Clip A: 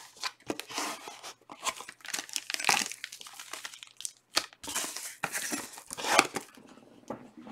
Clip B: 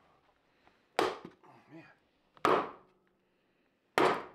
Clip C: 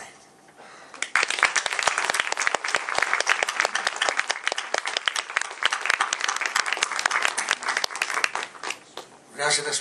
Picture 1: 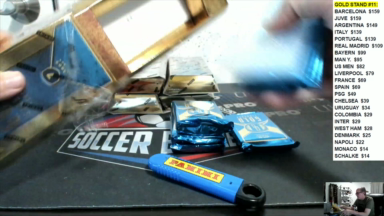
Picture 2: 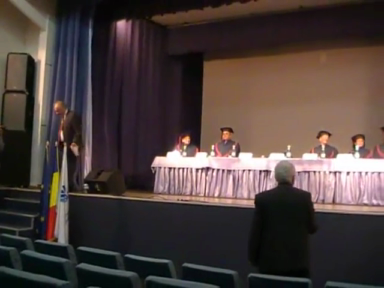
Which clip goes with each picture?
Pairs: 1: A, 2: C